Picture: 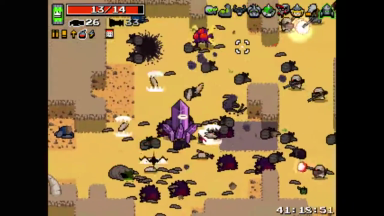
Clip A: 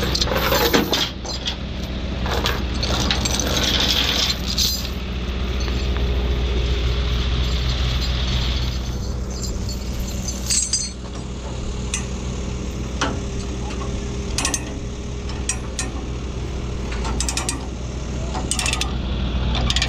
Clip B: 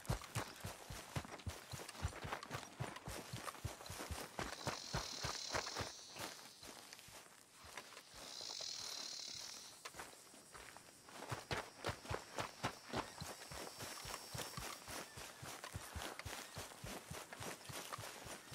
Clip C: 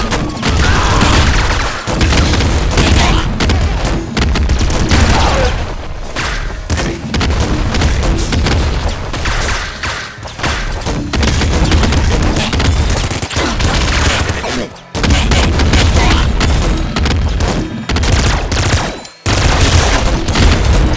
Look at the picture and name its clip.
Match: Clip C